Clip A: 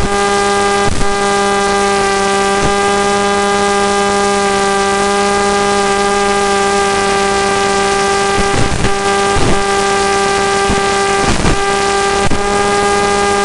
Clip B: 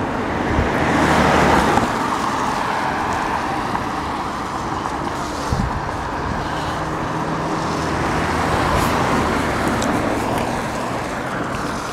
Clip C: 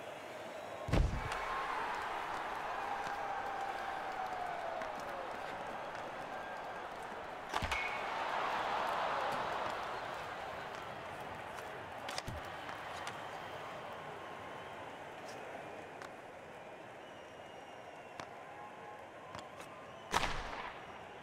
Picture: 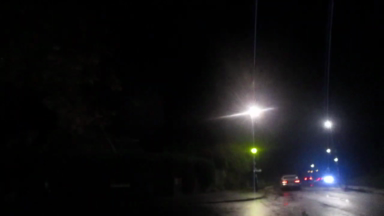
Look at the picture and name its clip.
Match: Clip B